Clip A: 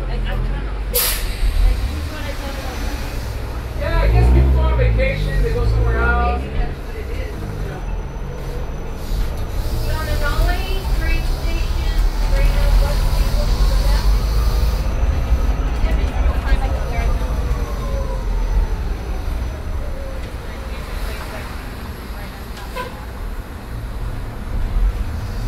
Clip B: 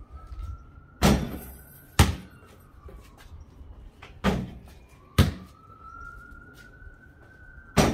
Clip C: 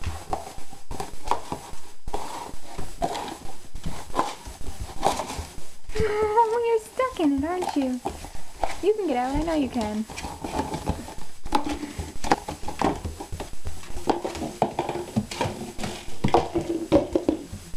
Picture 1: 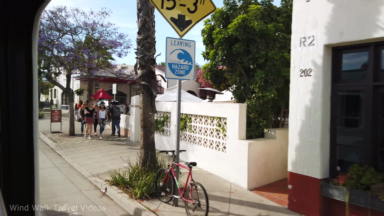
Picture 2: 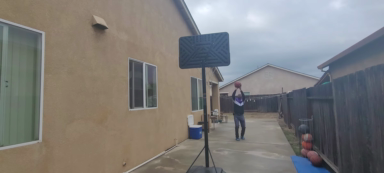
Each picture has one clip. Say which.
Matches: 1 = A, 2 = B